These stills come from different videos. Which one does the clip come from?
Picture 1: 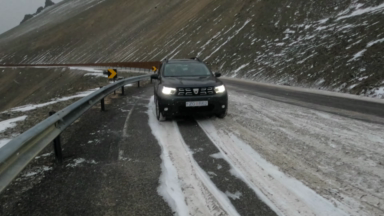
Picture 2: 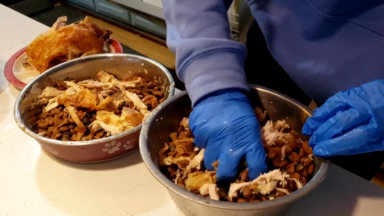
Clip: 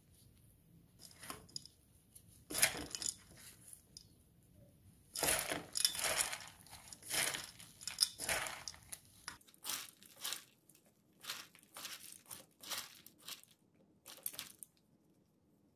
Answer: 2